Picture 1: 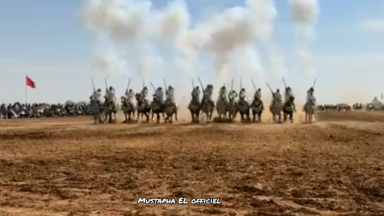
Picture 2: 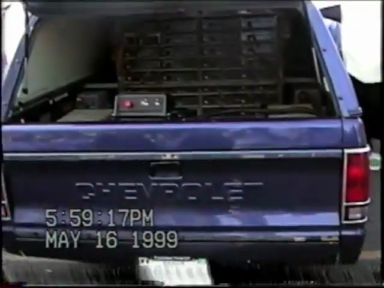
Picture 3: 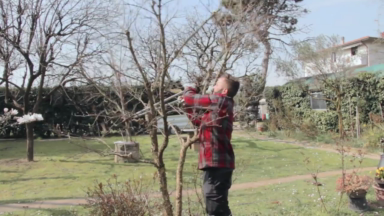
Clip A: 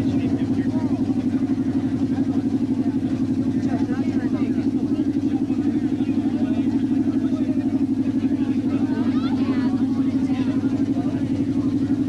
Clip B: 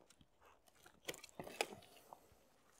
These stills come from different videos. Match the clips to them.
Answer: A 2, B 3